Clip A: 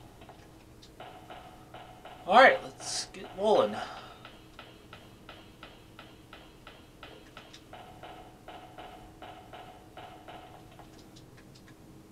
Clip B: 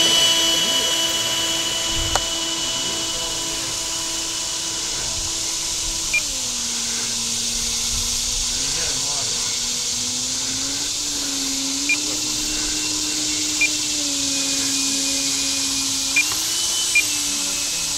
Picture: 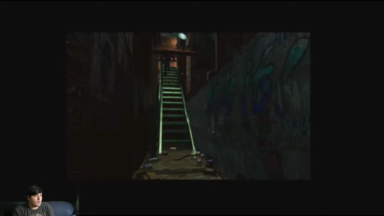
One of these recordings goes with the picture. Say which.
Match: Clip A